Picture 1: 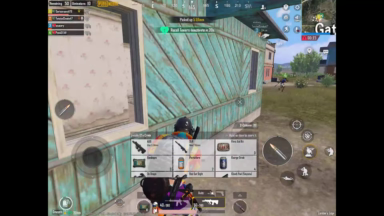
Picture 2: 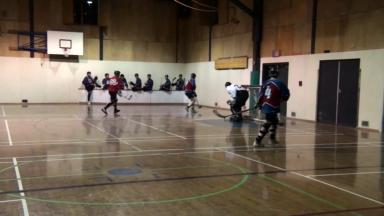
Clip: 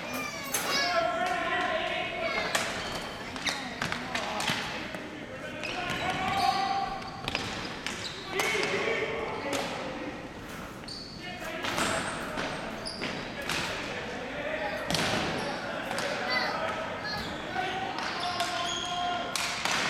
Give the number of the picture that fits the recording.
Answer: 2